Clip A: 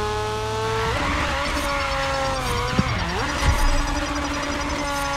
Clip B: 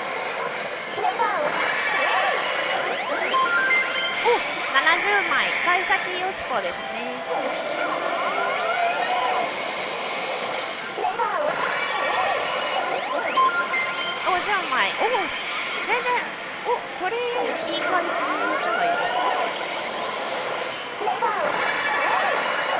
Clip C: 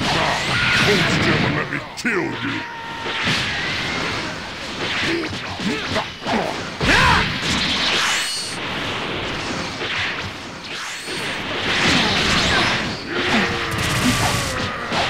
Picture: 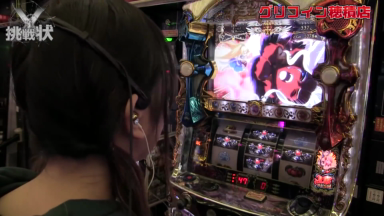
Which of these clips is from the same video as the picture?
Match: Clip B